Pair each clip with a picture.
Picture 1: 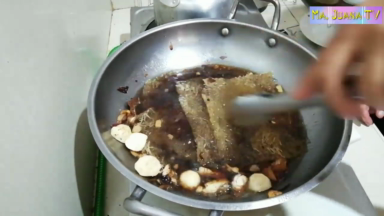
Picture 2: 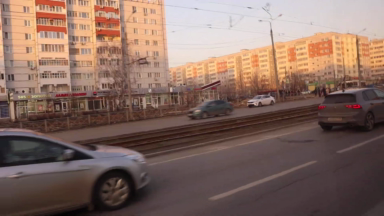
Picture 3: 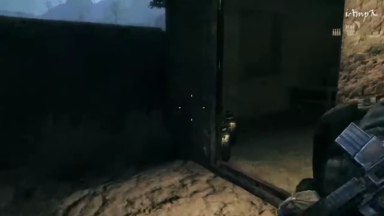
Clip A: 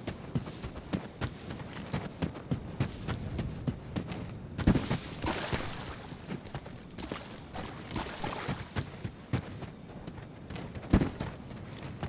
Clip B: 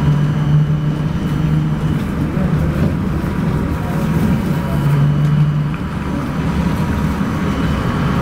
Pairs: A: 3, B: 2